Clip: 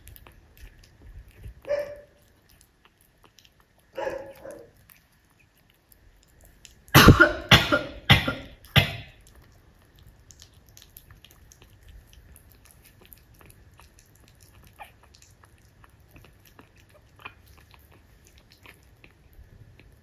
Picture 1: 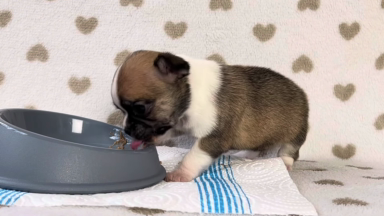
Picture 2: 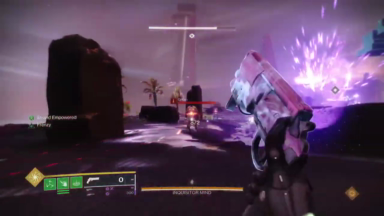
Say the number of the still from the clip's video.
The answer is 1